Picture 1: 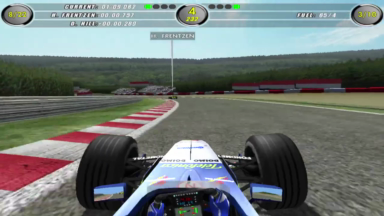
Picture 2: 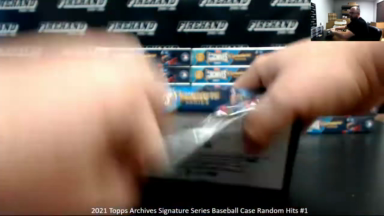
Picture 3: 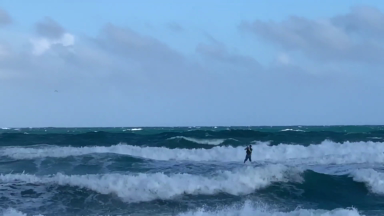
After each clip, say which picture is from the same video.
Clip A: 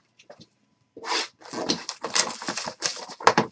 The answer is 2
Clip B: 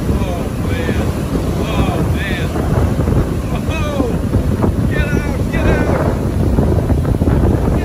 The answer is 3